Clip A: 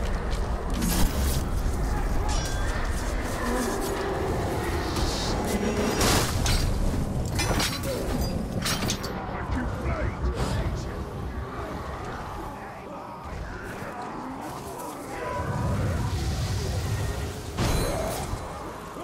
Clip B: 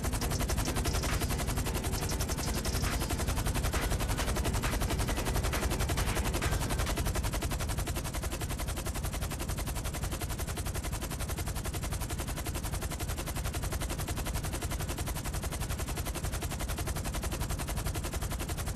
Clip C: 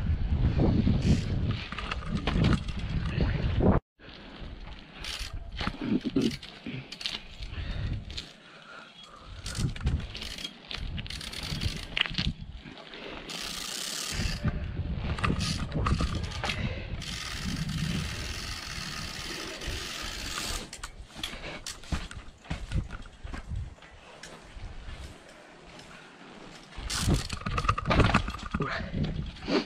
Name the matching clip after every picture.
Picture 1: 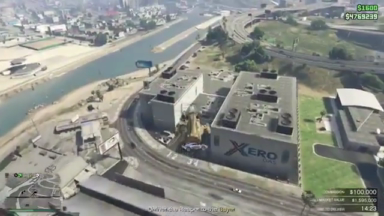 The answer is B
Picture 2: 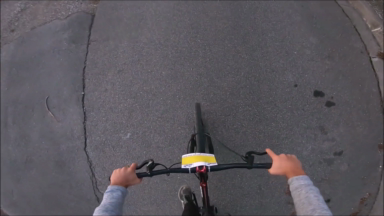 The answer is C